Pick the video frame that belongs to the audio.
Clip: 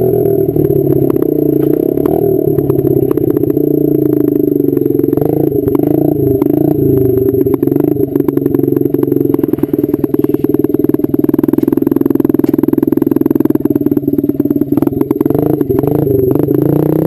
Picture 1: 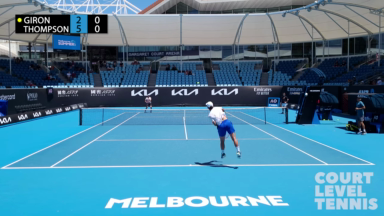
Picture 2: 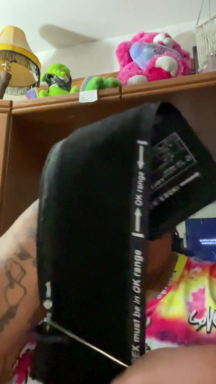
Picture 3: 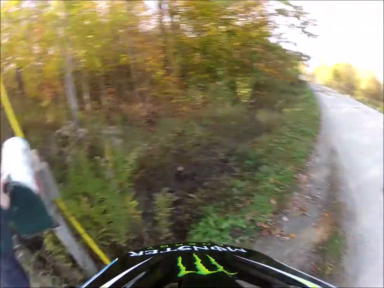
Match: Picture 3